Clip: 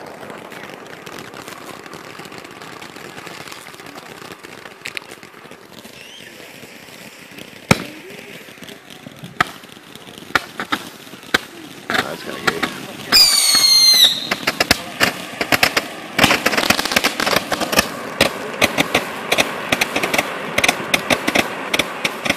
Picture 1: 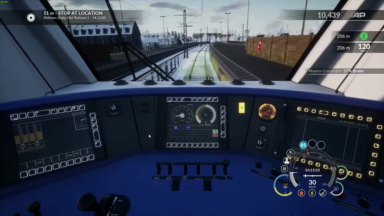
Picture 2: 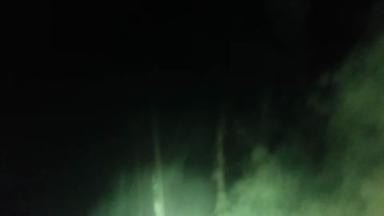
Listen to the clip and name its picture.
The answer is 2